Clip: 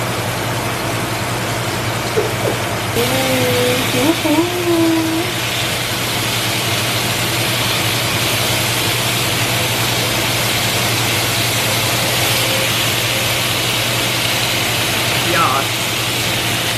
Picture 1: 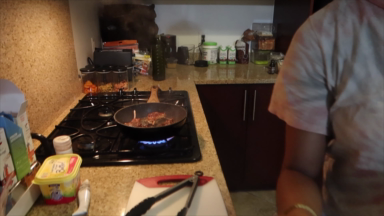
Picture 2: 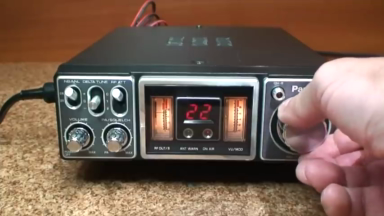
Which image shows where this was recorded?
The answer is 1